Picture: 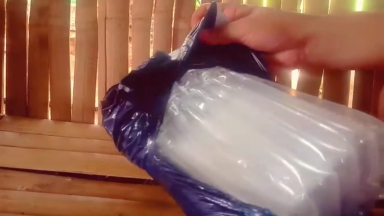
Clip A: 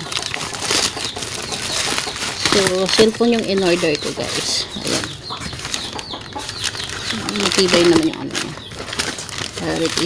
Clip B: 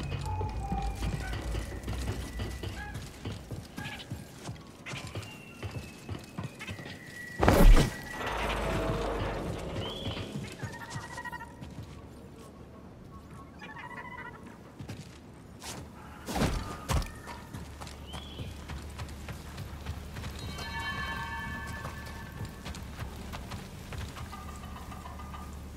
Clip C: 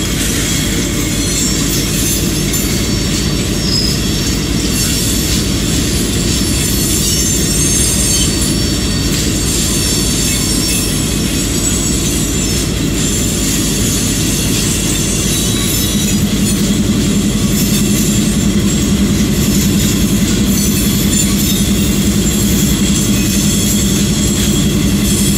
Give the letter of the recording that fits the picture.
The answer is A